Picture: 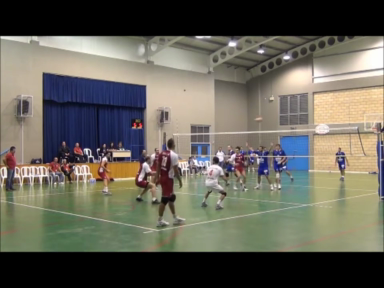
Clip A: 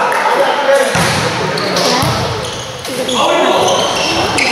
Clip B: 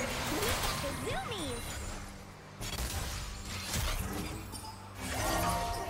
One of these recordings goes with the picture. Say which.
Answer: A